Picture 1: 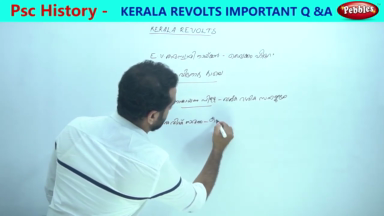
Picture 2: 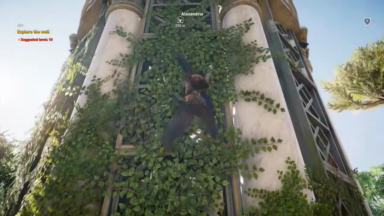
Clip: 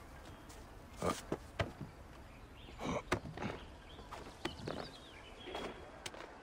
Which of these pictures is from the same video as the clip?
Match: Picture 2